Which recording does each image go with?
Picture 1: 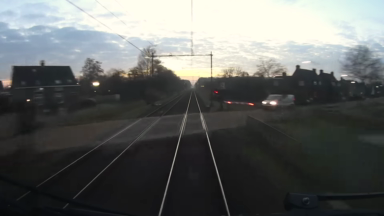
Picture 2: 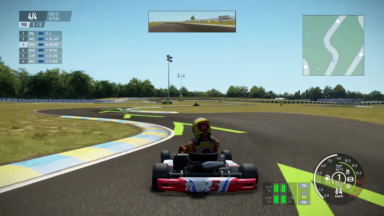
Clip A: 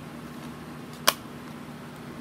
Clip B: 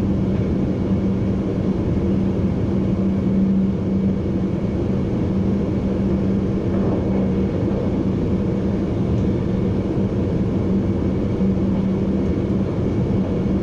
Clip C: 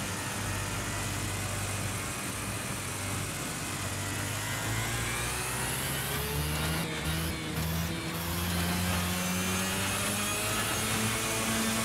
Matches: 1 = B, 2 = C